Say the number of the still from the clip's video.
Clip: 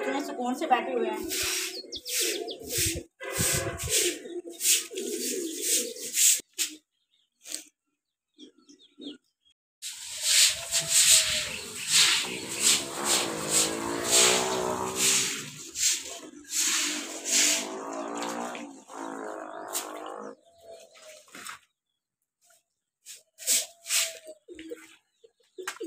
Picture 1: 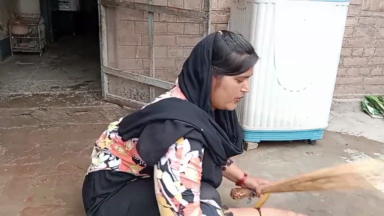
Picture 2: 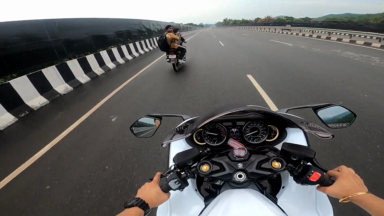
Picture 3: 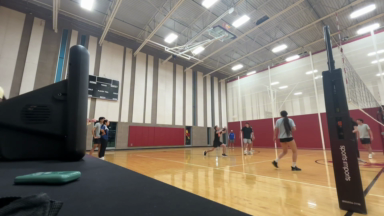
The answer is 1